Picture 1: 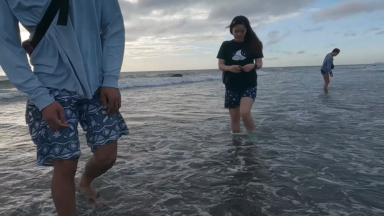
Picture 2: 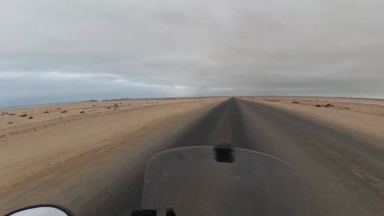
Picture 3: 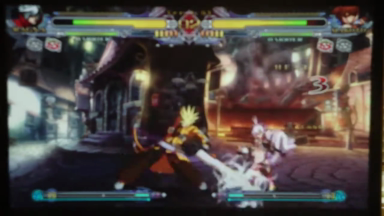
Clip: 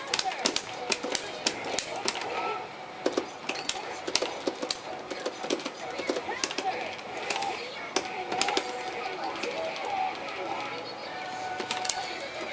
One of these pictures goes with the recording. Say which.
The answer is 3